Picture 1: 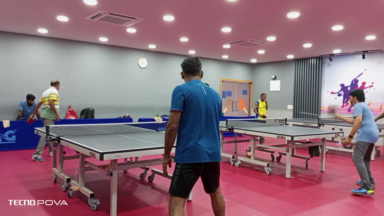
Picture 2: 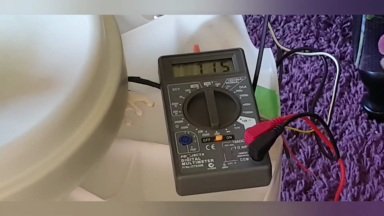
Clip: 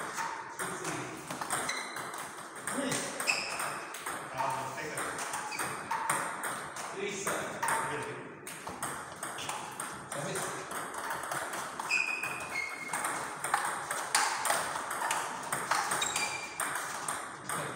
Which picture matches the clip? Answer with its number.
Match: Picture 1